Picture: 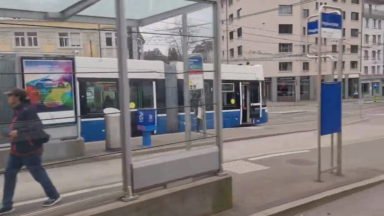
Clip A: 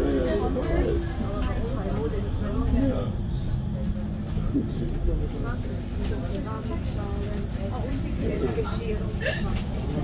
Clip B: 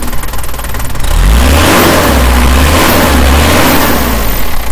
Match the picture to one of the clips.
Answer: A